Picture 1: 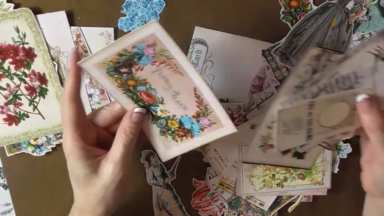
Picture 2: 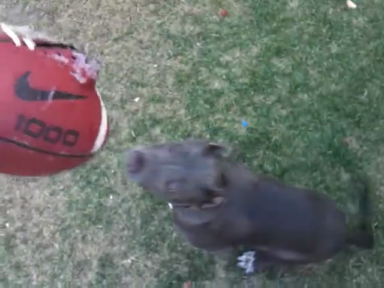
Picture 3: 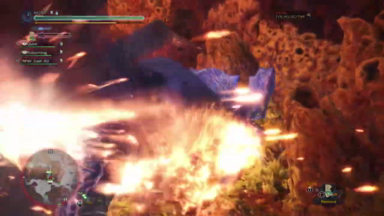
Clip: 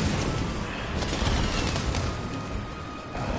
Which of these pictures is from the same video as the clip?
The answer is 3